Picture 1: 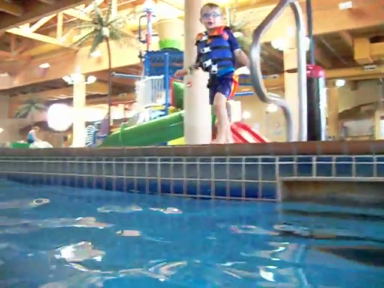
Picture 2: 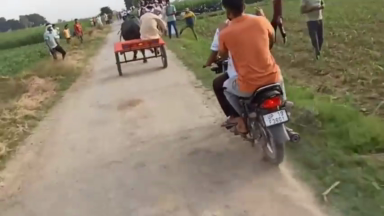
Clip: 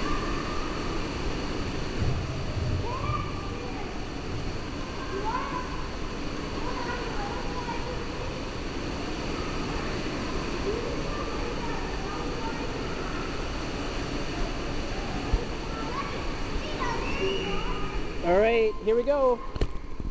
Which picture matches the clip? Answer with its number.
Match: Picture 1